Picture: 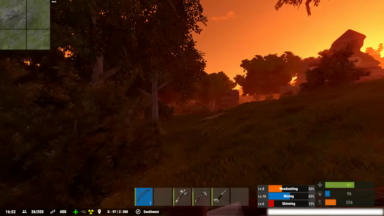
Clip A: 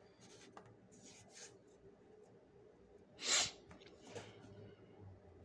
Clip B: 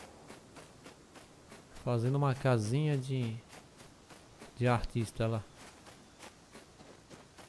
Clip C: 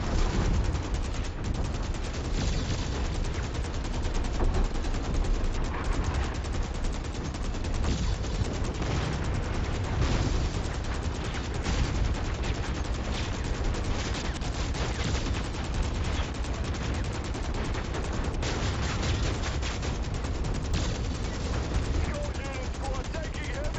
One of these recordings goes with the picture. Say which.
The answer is B